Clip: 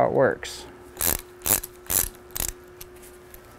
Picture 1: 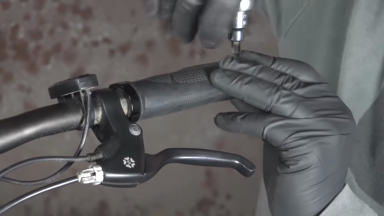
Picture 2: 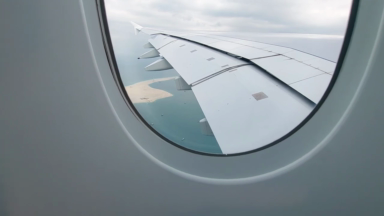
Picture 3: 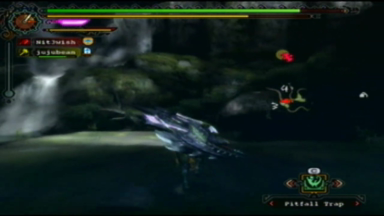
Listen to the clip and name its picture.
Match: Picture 1